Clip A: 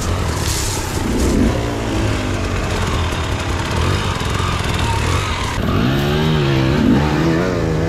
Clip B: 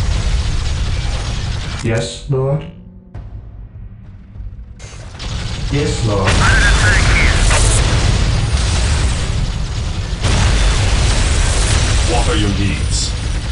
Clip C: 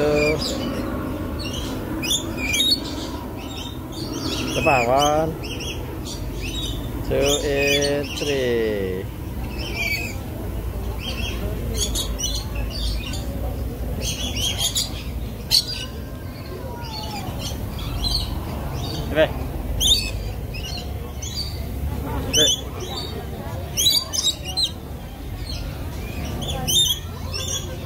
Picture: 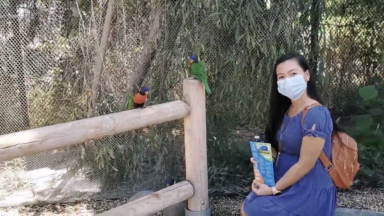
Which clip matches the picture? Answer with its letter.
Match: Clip C